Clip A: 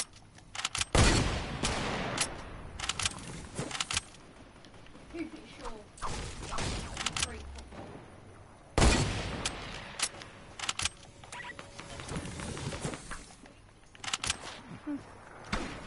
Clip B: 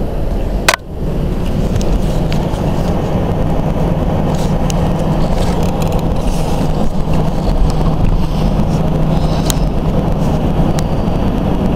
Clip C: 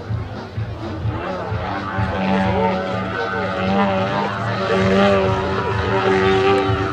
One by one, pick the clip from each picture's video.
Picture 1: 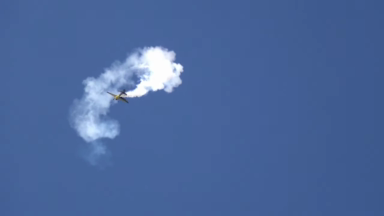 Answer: C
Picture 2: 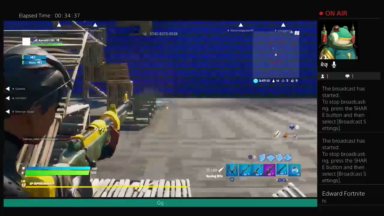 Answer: A